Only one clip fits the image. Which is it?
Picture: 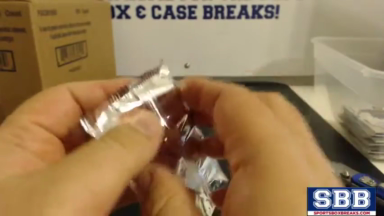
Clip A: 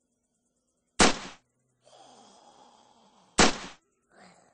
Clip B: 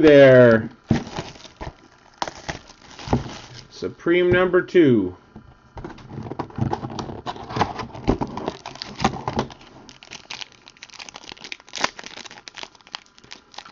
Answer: B